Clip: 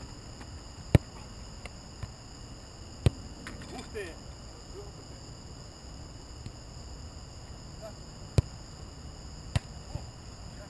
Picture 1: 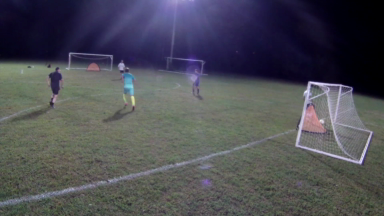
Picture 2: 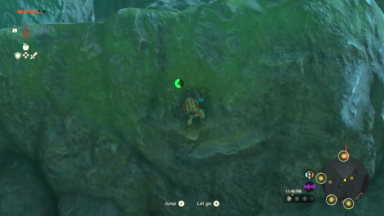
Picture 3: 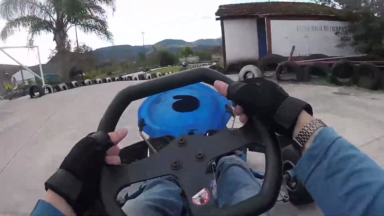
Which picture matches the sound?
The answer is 1